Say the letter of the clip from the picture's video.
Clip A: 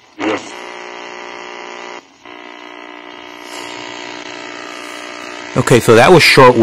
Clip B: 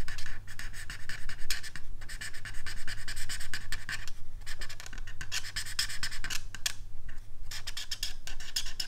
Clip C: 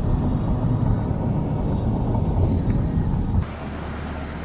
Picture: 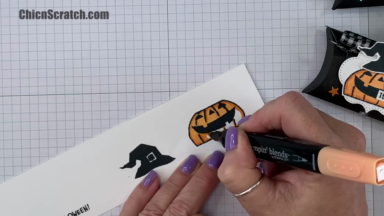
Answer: B